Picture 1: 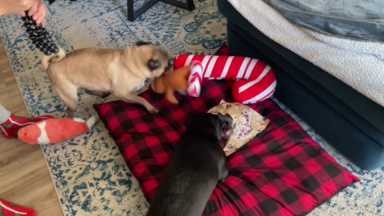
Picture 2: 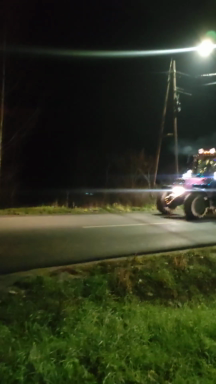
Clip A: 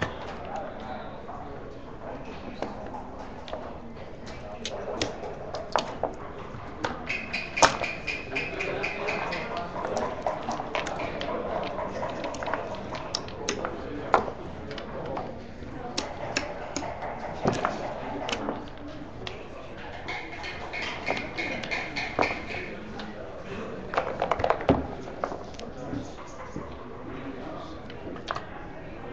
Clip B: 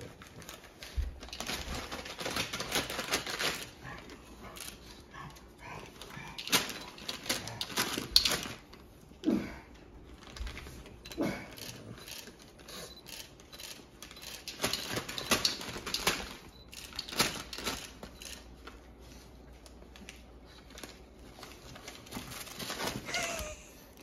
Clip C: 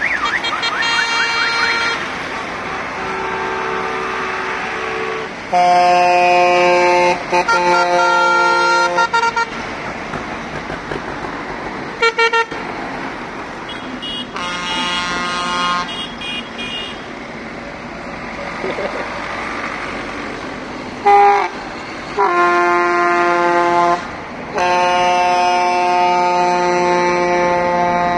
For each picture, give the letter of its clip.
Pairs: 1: B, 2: C